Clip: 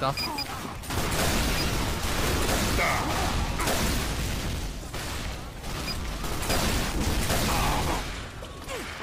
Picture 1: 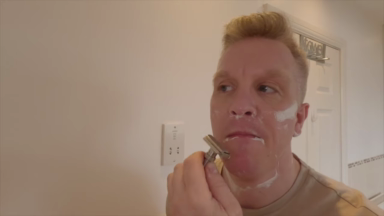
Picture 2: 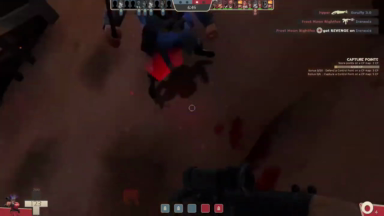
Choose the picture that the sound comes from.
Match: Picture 2